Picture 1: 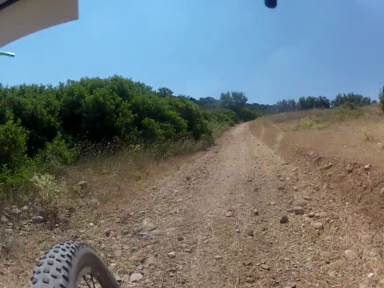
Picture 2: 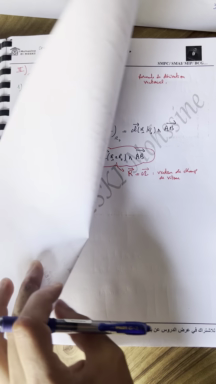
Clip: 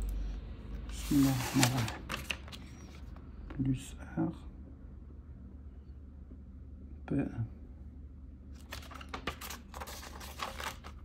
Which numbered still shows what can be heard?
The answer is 2